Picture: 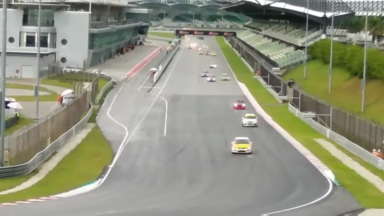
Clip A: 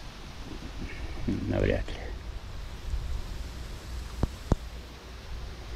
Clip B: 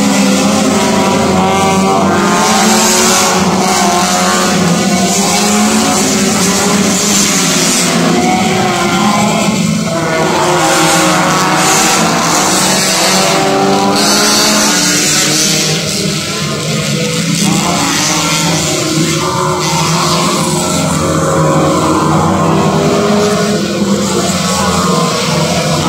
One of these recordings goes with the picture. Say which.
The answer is B